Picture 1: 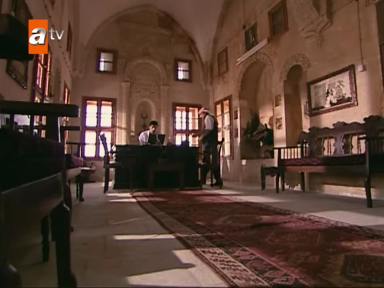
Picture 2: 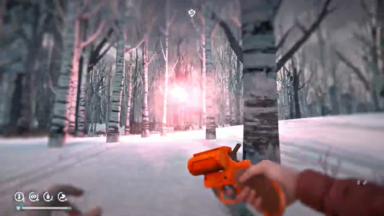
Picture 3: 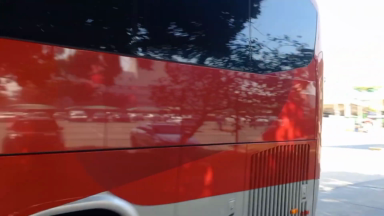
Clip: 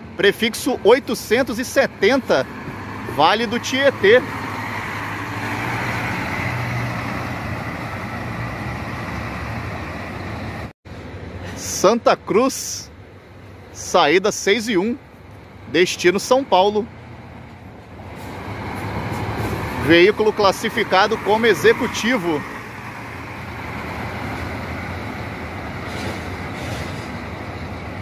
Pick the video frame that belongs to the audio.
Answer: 3